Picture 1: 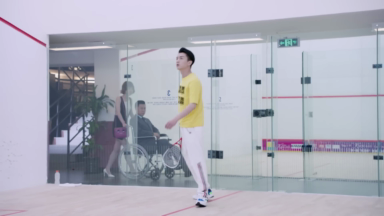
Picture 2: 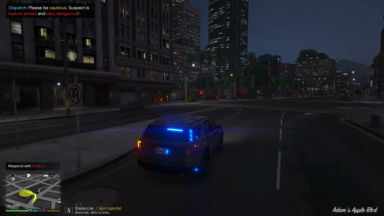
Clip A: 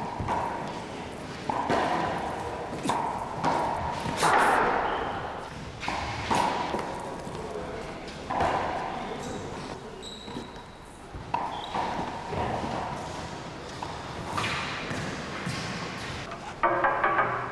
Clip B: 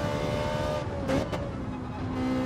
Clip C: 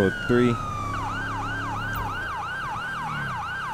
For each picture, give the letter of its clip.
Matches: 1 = A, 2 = C